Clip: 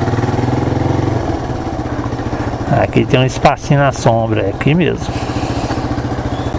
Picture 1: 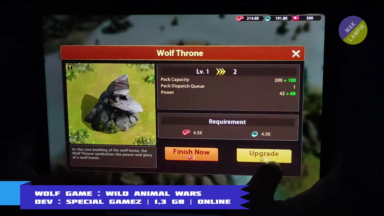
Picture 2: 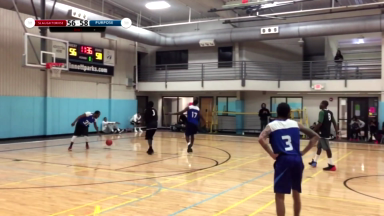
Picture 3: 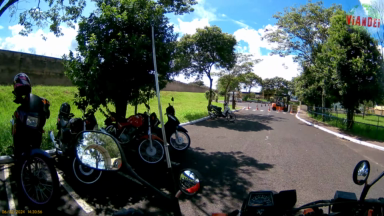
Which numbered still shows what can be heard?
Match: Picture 3